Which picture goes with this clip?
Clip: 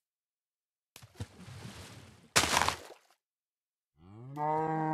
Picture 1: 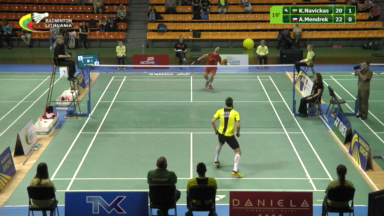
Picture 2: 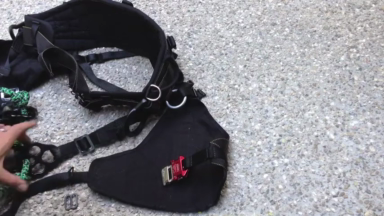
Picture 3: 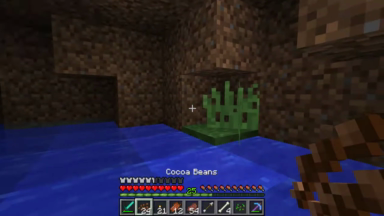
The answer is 3